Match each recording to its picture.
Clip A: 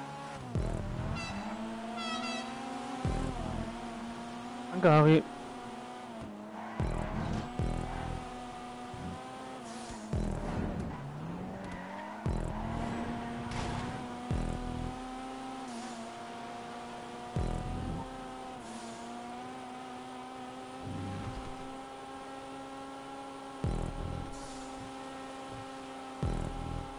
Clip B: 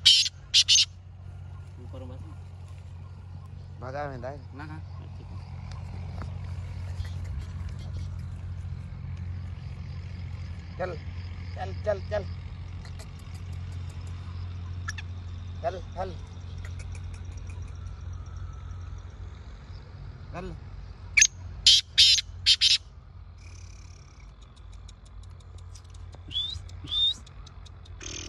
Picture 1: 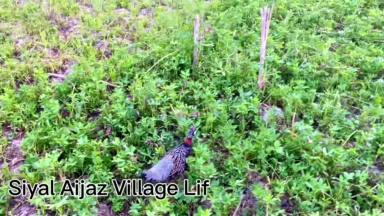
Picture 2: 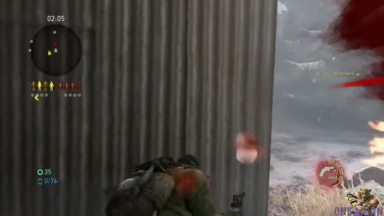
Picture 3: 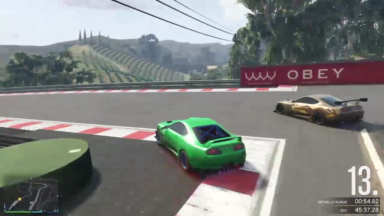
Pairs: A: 3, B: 1